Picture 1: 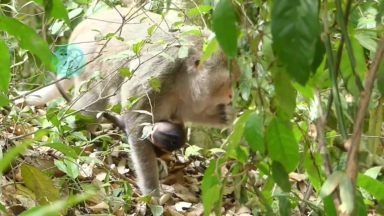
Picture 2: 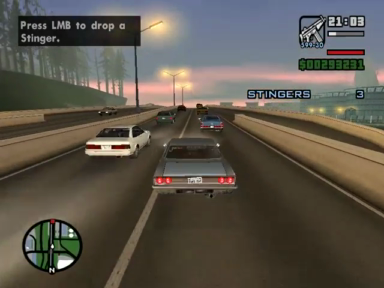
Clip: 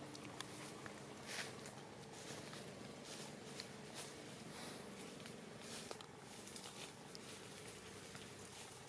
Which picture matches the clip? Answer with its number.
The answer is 1